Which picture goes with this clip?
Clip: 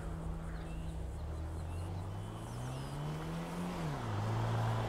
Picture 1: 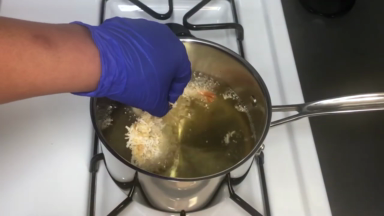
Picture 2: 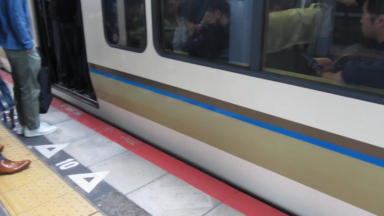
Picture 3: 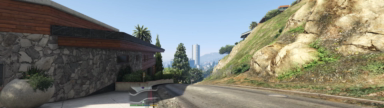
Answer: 3